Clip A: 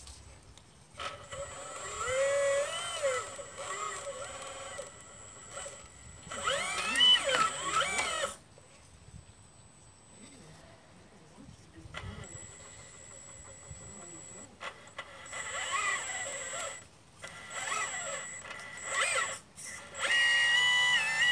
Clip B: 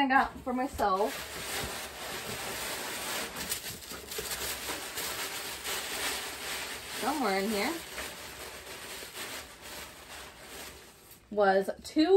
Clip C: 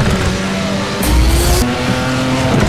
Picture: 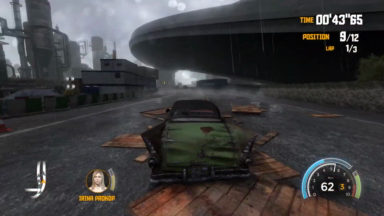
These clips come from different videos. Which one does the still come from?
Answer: C